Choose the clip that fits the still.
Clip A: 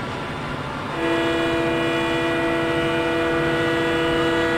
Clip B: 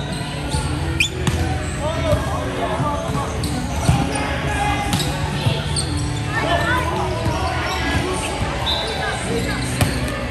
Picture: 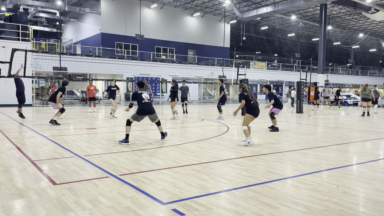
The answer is B